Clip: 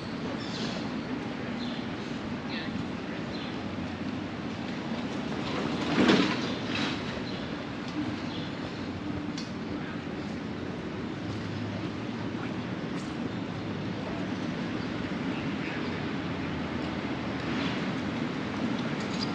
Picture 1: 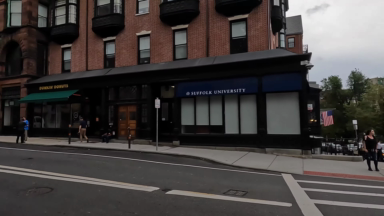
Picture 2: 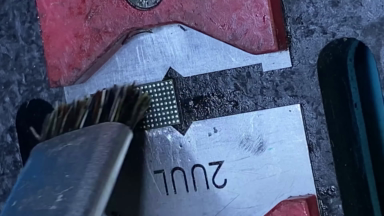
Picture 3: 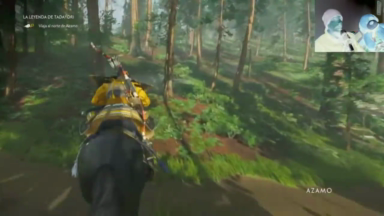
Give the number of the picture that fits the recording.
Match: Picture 1